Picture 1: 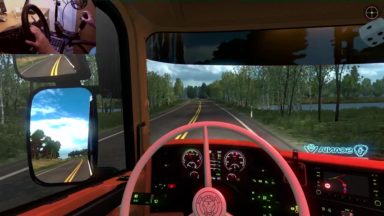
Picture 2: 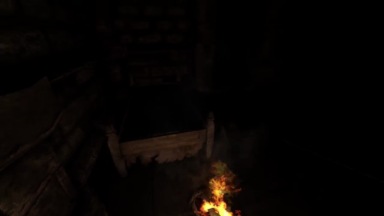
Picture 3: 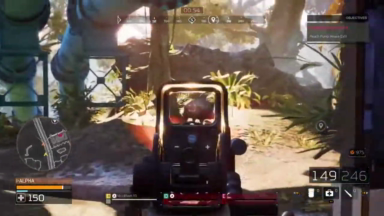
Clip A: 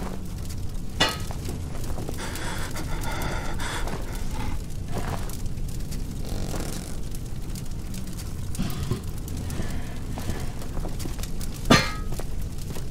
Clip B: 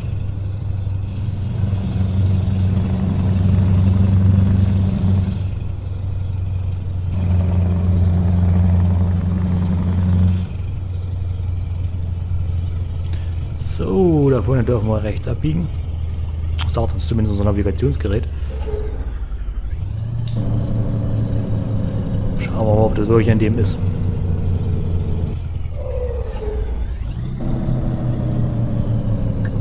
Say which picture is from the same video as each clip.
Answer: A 2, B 1